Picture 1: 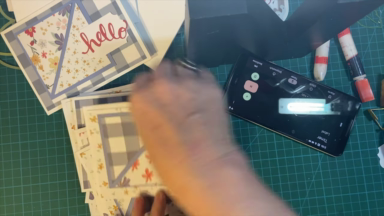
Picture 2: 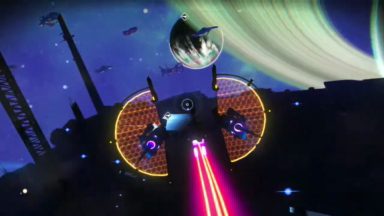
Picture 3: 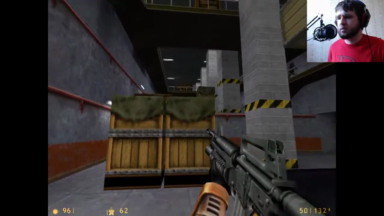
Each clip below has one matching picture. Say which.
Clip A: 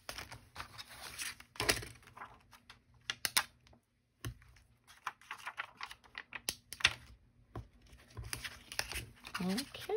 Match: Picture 1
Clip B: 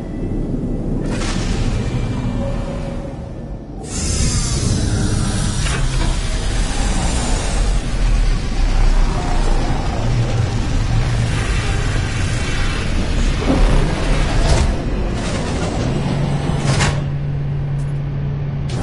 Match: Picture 2